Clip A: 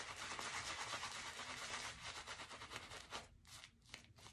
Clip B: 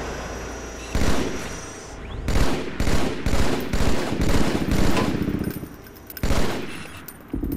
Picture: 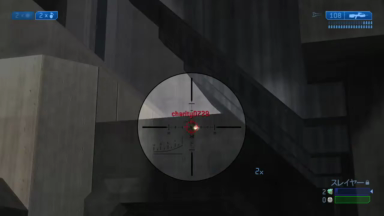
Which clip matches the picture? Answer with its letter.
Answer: B